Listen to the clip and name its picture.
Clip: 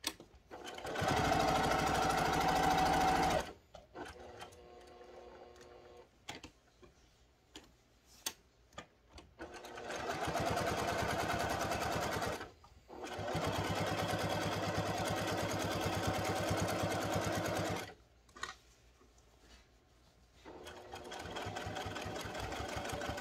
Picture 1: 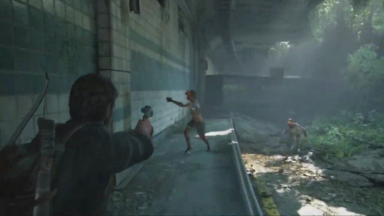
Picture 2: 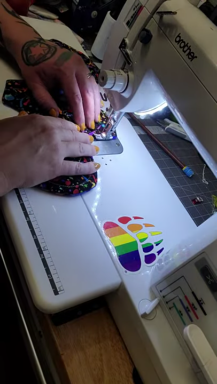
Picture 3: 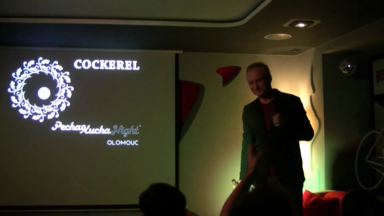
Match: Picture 2